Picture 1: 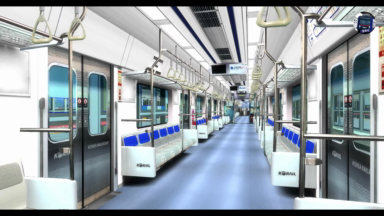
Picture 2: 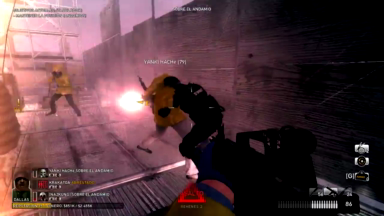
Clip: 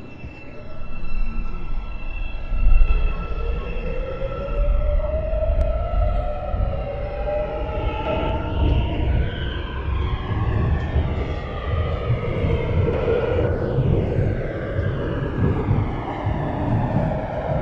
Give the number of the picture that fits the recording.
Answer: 1